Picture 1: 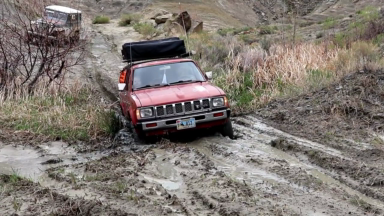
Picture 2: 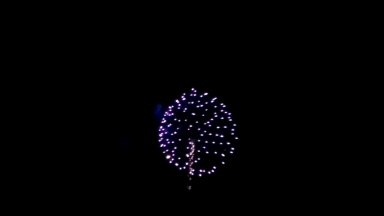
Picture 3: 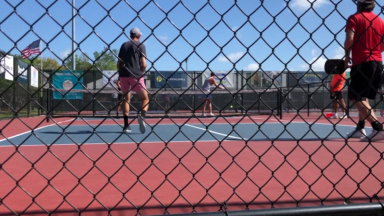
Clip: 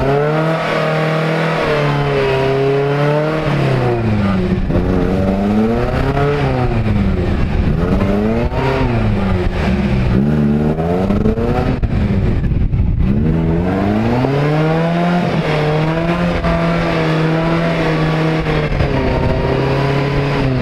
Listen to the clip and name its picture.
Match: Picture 1